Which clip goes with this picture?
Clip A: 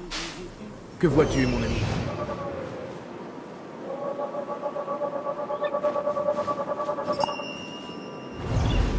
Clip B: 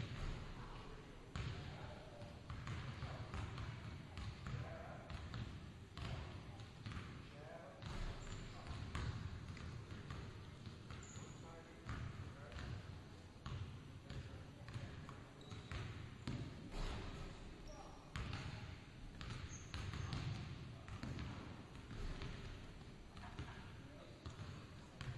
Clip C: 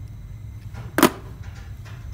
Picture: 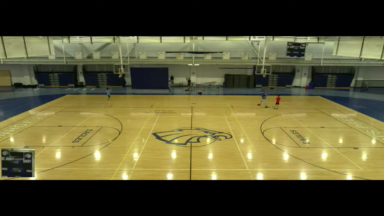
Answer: B